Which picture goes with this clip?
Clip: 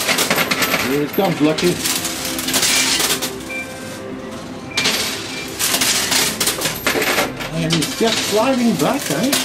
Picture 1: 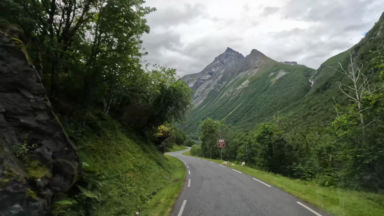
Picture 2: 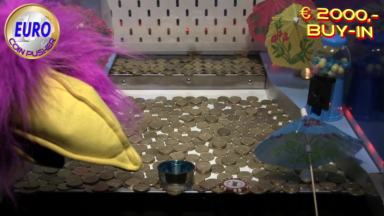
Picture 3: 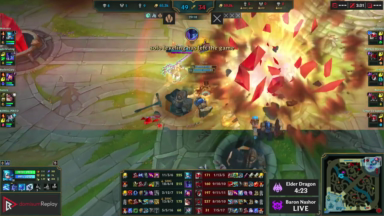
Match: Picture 2